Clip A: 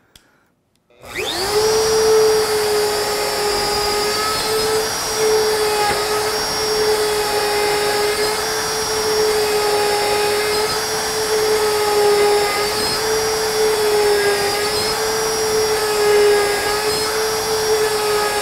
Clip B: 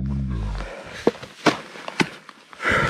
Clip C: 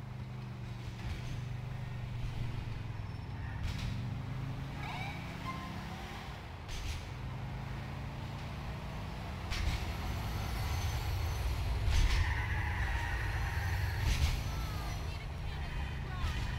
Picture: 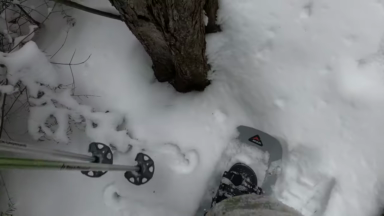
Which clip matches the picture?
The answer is B